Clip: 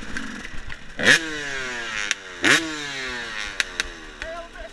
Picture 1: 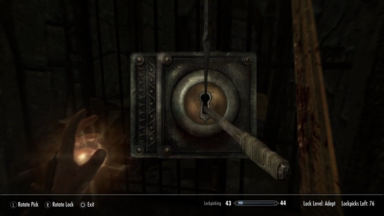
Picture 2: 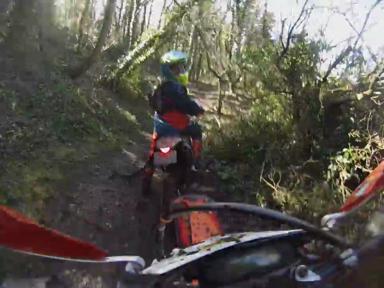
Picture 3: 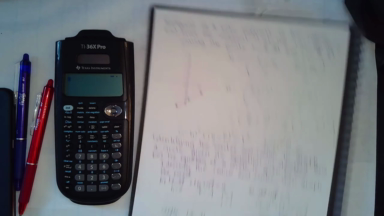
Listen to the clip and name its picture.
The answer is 2